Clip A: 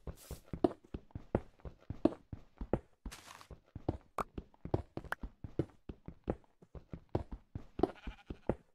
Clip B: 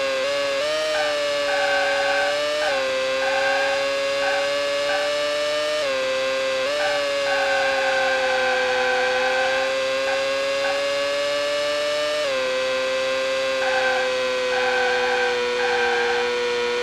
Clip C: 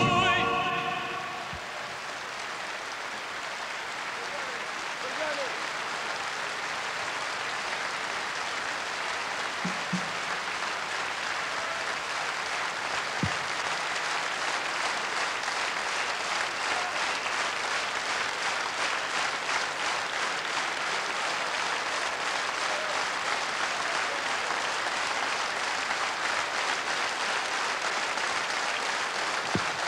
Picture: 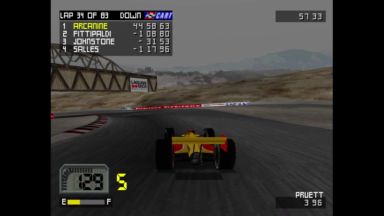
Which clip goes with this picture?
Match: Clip B